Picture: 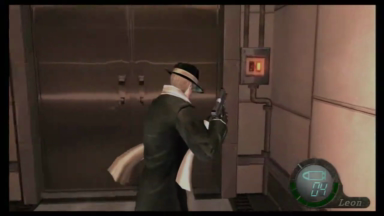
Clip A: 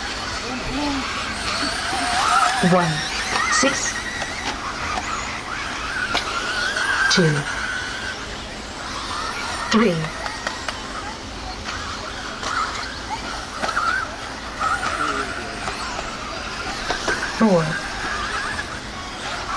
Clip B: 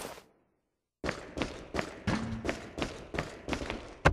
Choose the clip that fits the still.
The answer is B